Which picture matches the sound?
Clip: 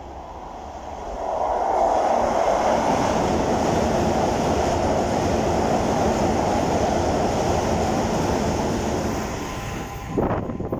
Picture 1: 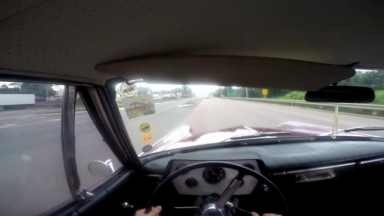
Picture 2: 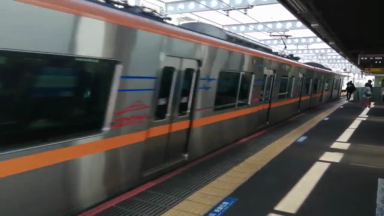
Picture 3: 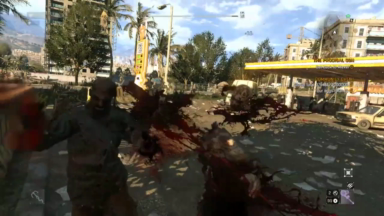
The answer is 2